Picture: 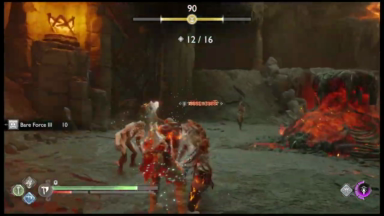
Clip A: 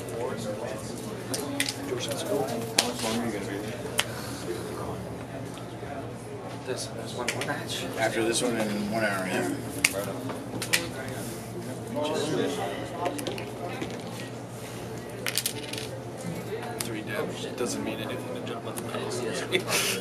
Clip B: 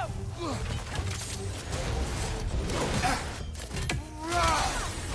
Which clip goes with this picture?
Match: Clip B